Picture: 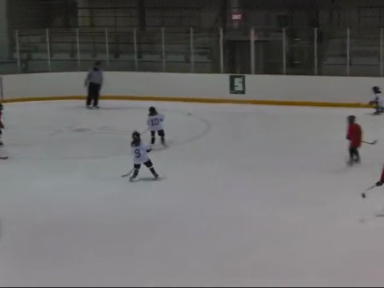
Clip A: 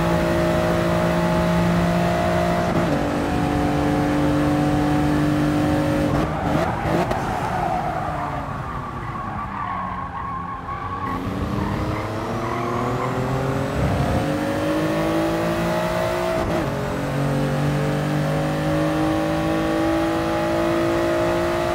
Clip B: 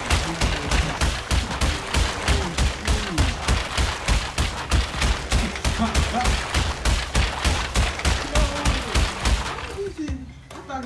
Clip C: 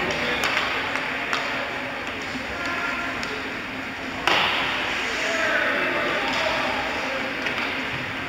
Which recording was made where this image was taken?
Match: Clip C